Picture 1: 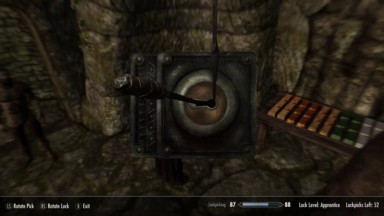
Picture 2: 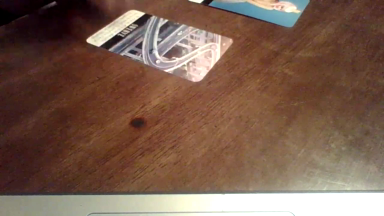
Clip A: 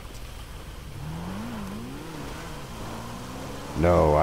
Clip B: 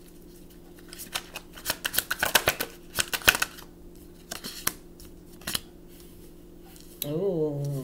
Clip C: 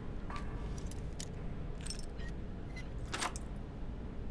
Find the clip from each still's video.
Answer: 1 C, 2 B